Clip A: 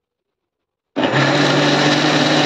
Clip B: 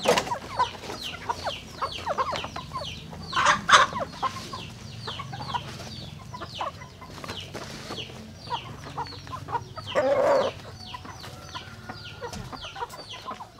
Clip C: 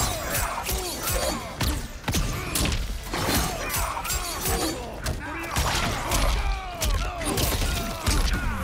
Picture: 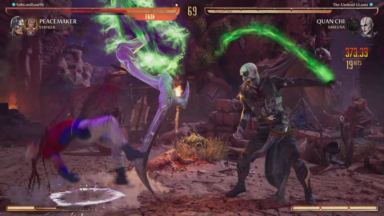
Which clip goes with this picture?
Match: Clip C